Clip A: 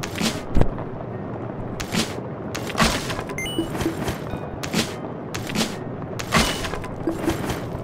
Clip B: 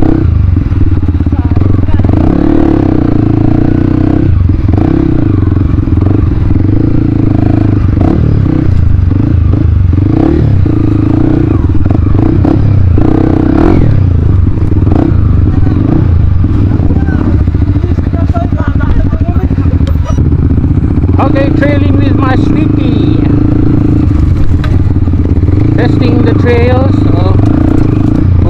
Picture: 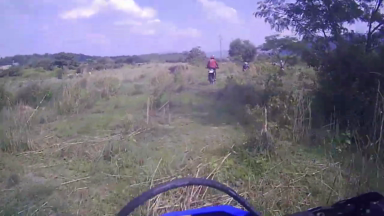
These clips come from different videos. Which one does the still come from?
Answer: B